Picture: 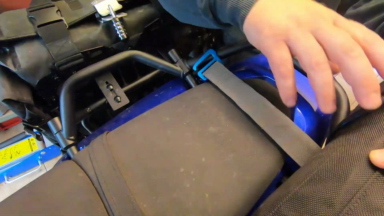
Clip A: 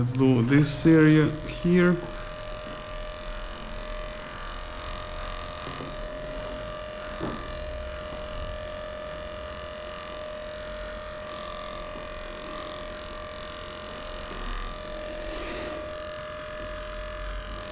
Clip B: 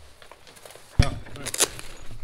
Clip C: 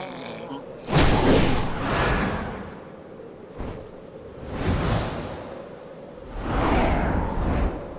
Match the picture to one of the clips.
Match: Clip B